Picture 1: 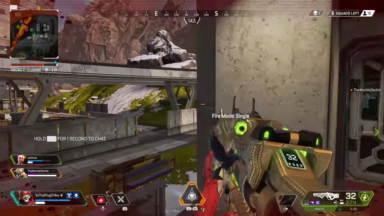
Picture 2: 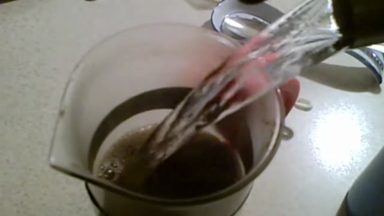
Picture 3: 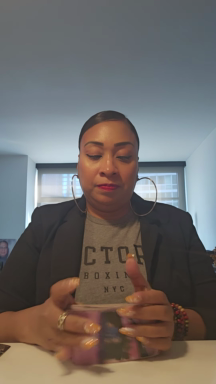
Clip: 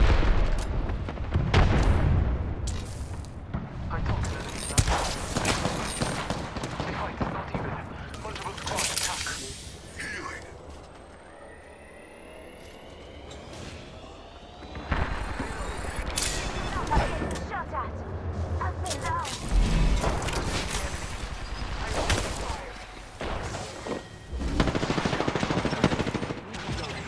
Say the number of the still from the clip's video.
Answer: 1